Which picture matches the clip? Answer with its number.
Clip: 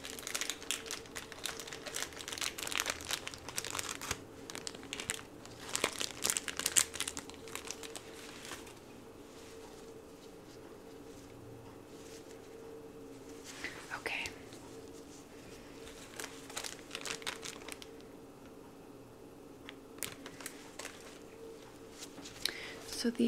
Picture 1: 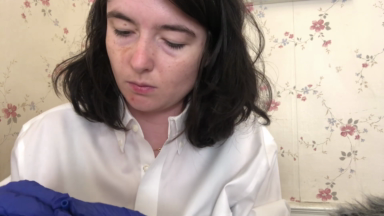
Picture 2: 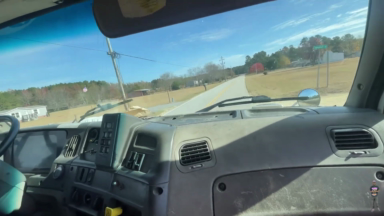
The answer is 1